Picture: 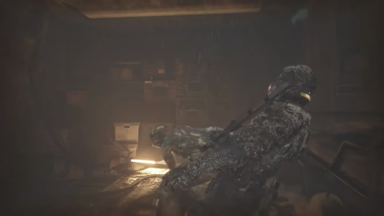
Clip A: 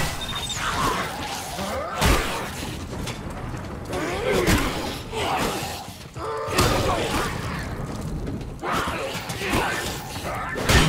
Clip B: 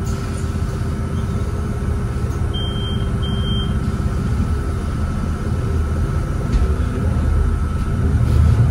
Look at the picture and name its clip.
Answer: A